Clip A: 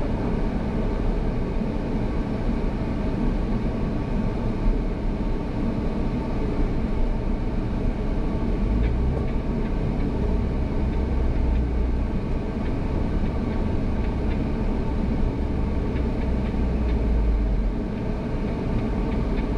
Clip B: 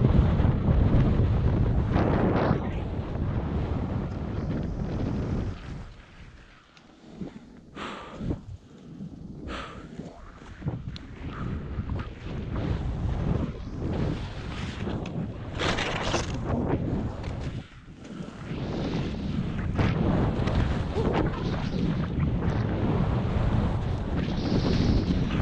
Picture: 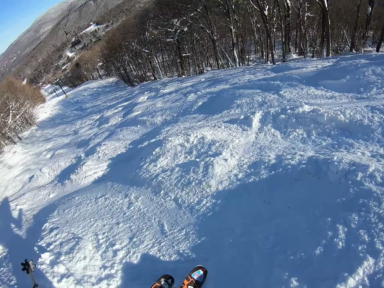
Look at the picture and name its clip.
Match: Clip B